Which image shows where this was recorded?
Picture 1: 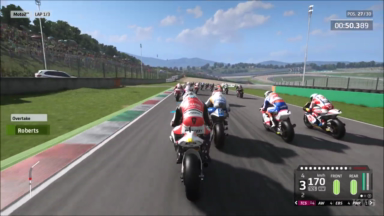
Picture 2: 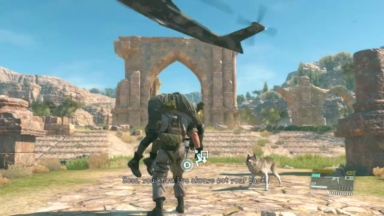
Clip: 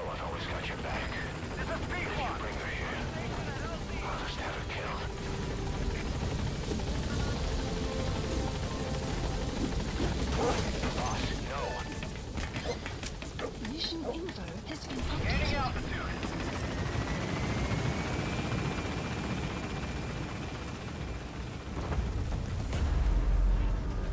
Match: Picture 2